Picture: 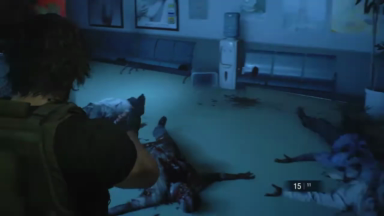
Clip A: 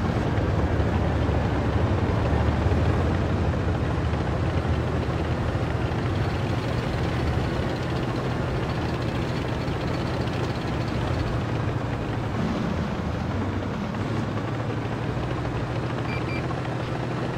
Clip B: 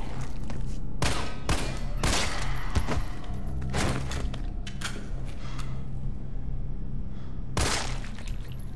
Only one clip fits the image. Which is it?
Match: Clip B